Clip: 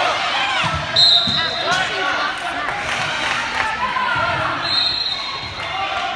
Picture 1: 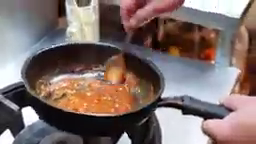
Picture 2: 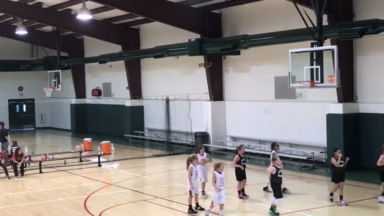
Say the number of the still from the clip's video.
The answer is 2